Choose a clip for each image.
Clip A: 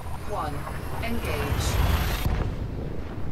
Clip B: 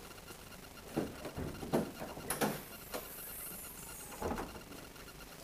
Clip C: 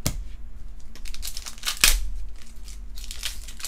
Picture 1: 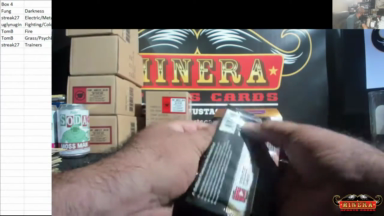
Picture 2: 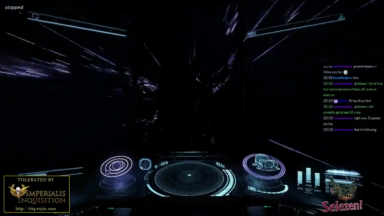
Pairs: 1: C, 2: A